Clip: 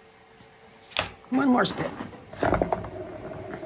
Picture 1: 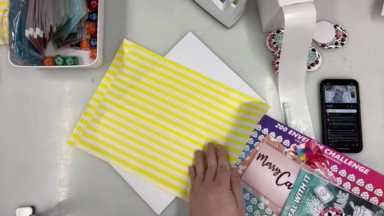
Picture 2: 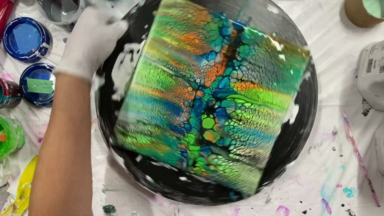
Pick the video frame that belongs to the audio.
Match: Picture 2